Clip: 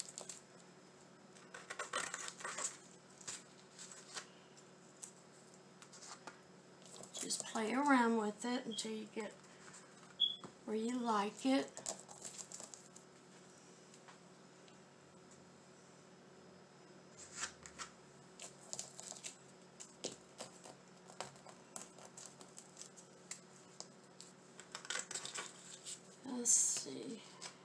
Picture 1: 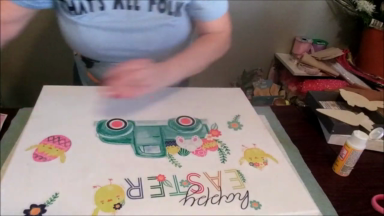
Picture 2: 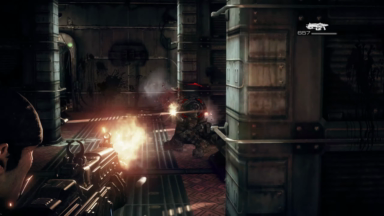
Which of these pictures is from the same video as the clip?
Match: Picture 1